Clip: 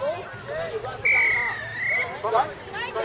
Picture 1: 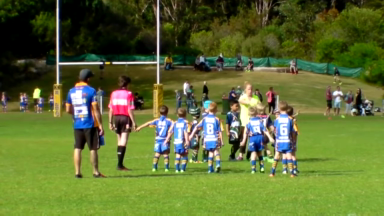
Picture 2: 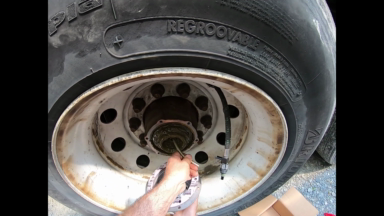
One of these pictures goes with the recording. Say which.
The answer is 1